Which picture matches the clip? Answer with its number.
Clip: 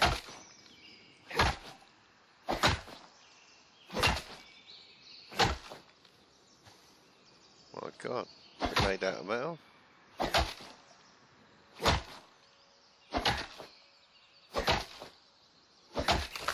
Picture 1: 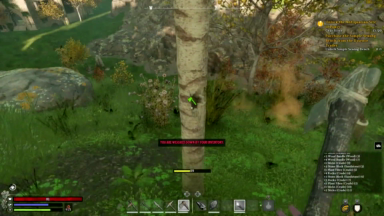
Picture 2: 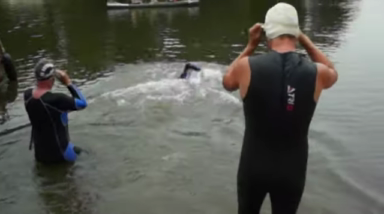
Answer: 1